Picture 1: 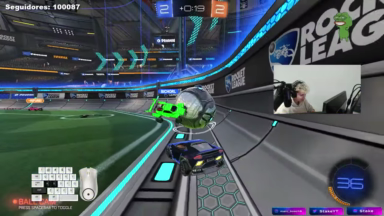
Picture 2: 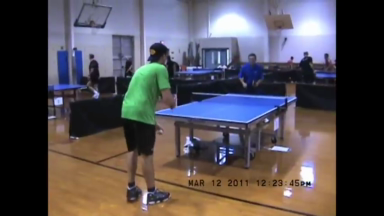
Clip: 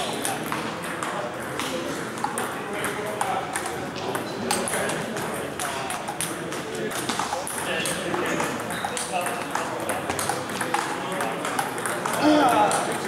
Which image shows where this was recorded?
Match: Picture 2